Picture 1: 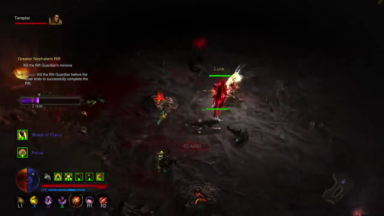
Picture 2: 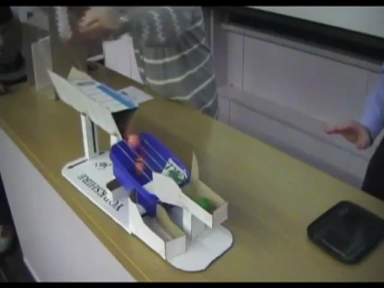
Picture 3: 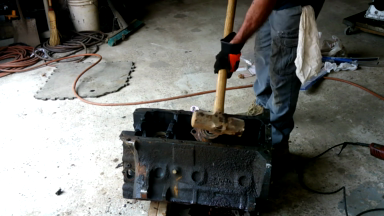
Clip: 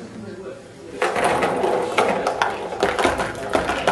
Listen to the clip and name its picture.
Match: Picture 2